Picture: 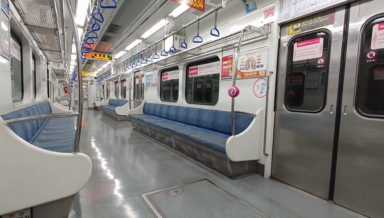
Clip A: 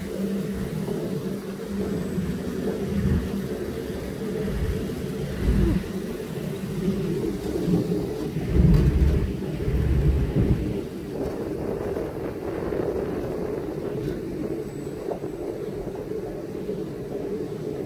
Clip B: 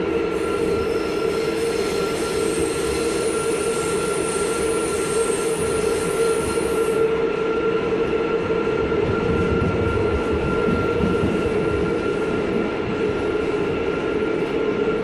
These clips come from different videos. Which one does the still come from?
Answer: B